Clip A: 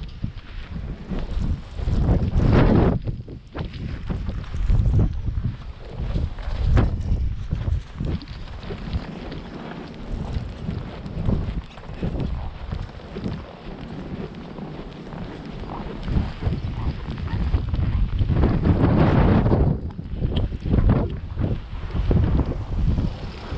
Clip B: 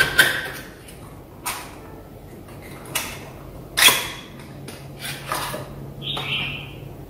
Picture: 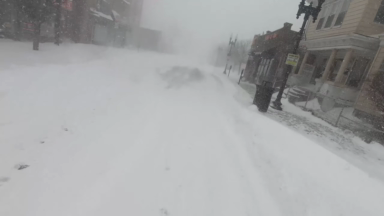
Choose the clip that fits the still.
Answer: A